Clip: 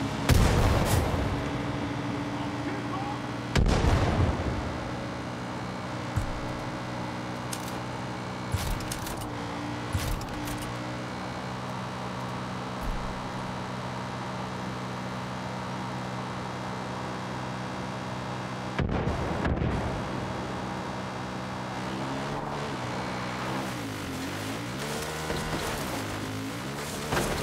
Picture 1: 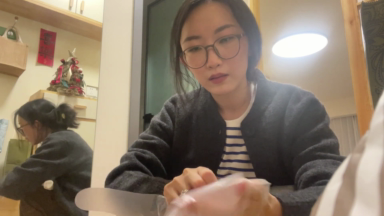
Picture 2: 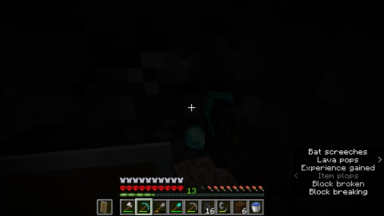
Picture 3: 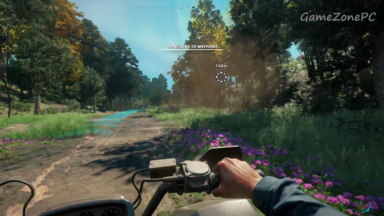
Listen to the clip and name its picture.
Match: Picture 3